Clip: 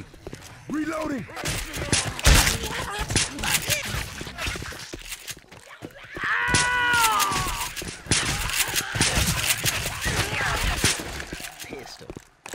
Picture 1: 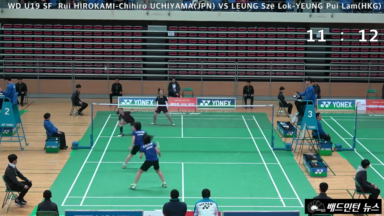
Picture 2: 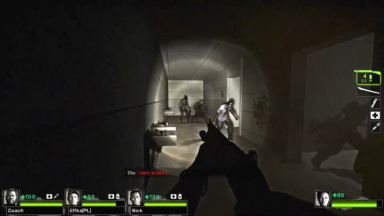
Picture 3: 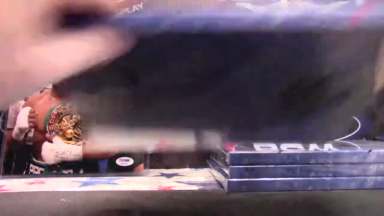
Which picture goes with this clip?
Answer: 2